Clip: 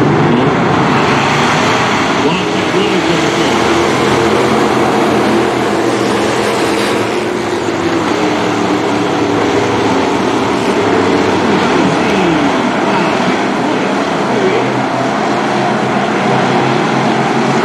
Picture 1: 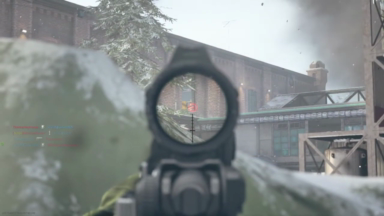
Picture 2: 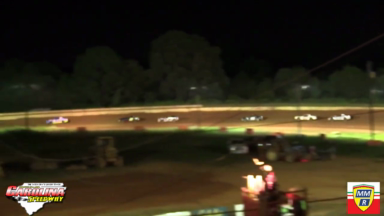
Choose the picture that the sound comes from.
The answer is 2